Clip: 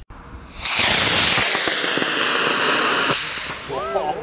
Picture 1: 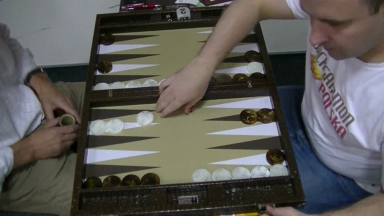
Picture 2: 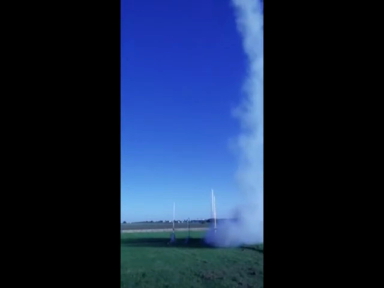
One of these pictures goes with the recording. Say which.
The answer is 2